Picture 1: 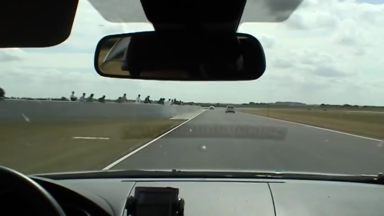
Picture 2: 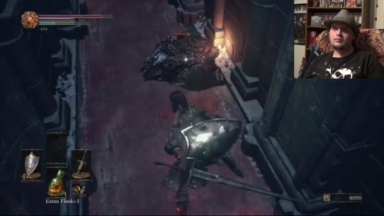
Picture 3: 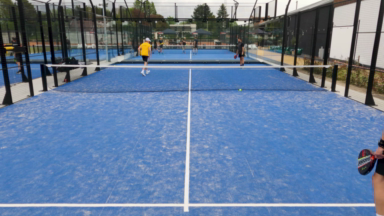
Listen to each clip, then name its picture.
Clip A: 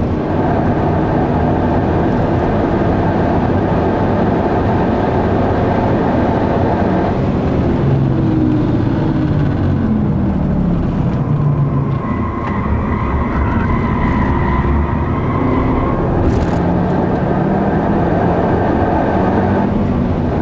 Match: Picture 1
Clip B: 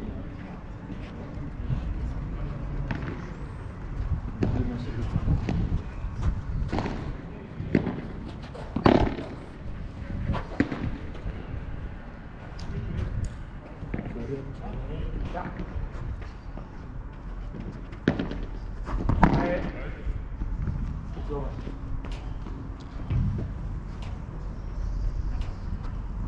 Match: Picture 3